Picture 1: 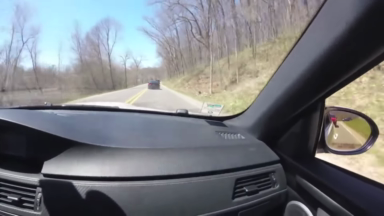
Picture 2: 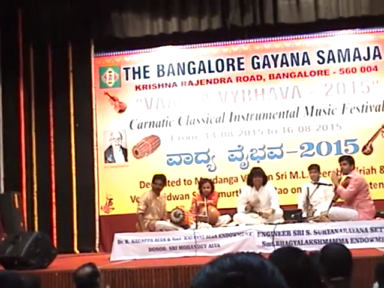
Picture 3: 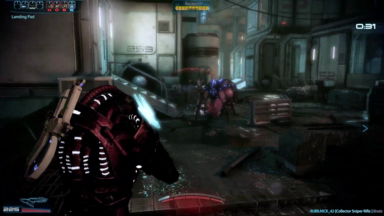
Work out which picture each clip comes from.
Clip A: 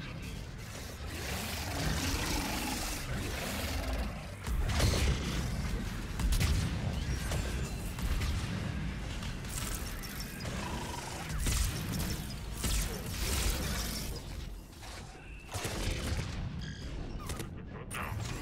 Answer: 3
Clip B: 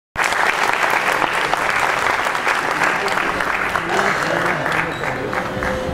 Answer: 2